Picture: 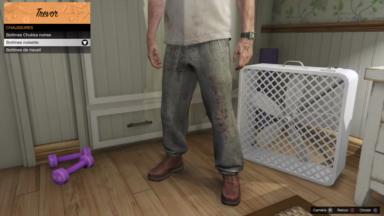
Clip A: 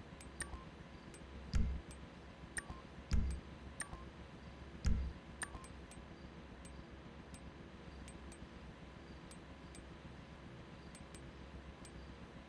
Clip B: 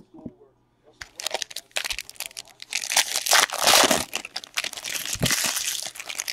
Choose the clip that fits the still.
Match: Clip A